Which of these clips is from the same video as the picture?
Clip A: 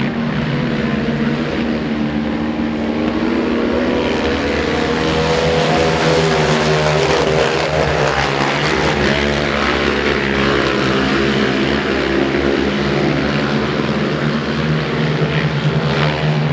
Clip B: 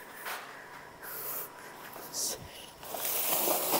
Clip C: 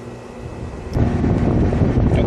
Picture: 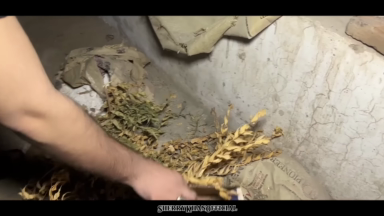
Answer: B